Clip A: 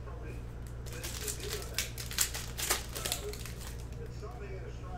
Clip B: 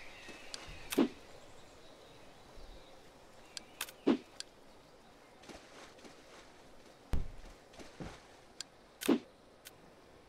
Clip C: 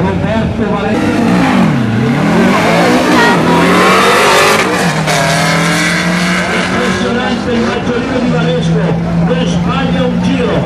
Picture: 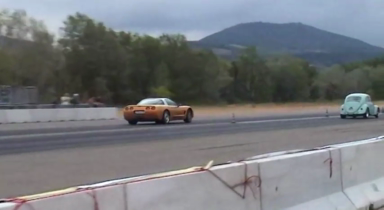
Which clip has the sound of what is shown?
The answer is C